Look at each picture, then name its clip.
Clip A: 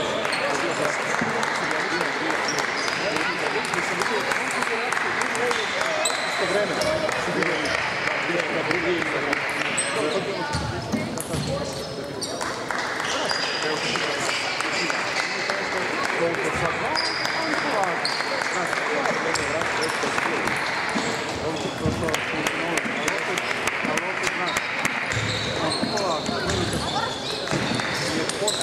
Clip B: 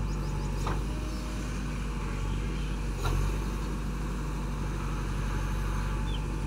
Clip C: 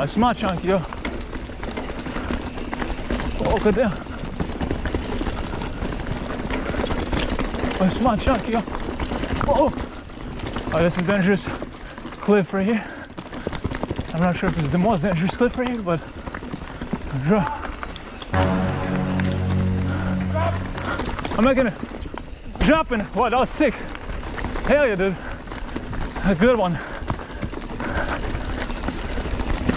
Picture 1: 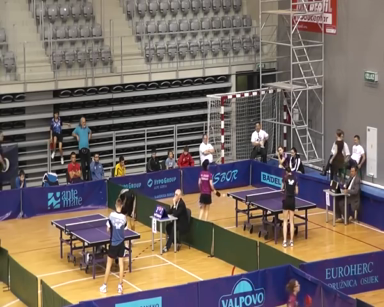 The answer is A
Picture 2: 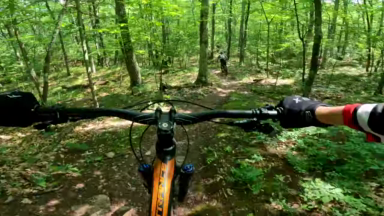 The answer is C